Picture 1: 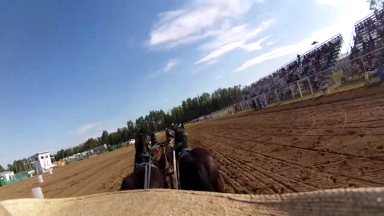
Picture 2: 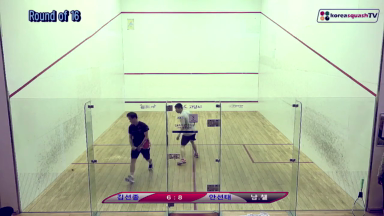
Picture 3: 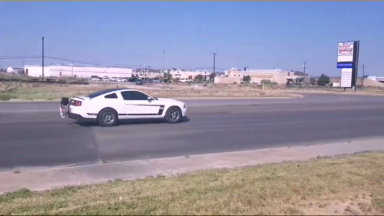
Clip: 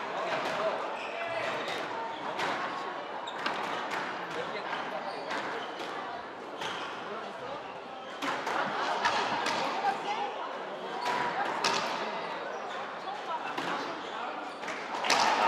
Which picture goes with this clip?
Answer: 2